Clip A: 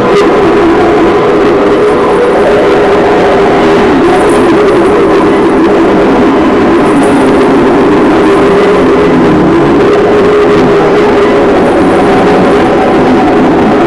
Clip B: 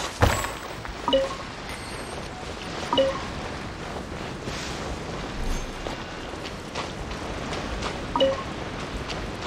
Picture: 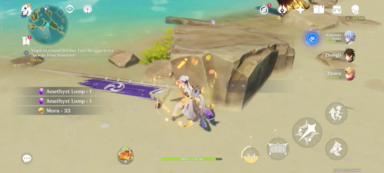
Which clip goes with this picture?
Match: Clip B